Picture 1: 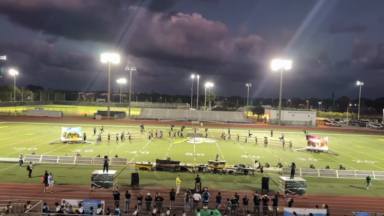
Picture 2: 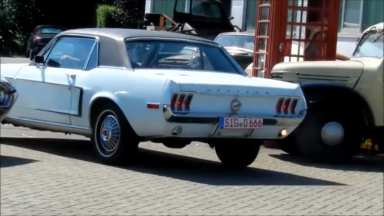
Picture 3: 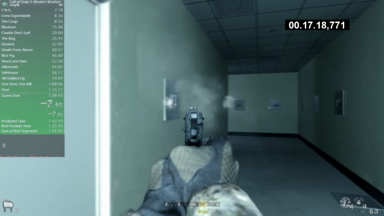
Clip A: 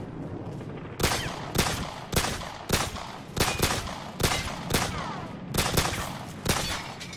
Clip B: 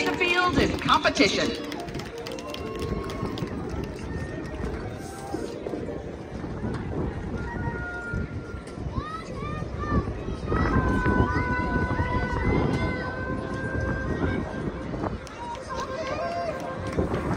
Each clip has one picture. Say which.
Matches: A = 3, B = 1